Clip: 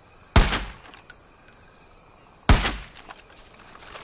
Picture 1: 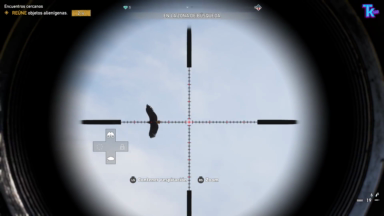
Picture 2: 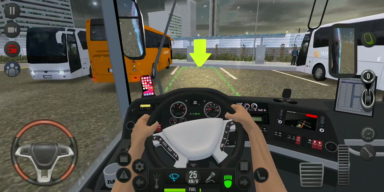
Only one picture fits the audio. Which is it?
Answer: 1